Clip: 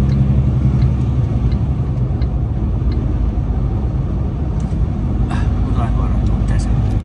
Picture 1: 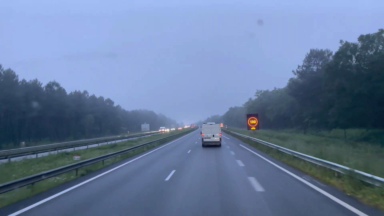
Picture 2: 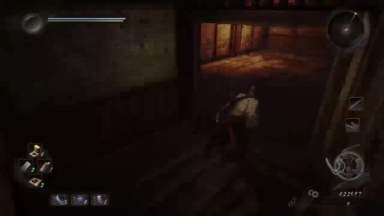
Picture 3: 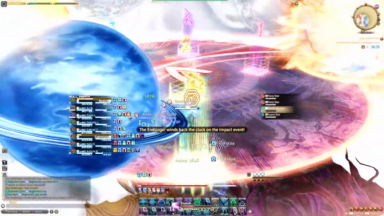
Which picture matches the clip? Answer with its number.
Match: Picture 1